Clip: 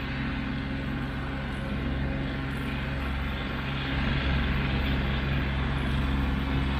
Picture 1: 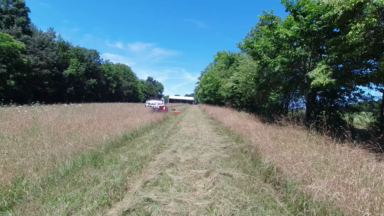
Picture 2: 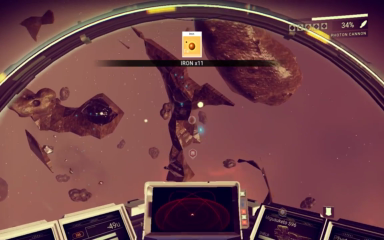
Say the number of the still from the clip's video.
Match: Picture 1